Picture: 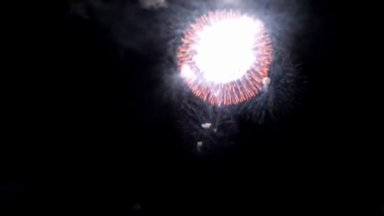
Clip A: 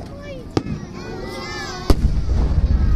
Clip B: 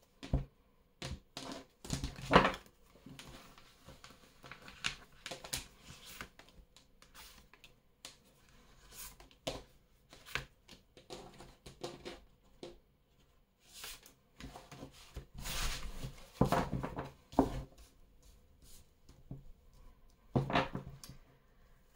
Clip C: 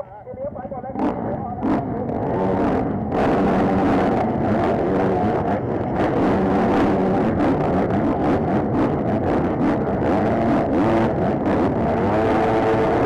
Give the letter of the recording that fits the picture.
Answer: A